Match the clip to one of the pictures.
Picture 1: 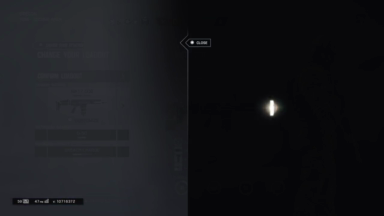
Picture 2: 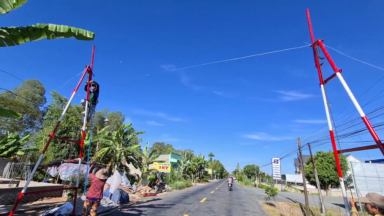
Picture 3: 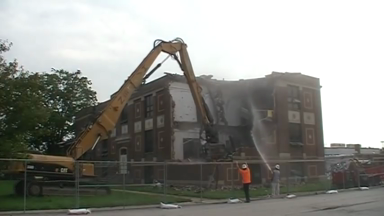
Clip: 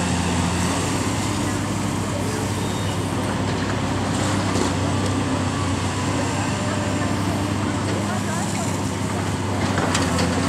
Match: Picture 3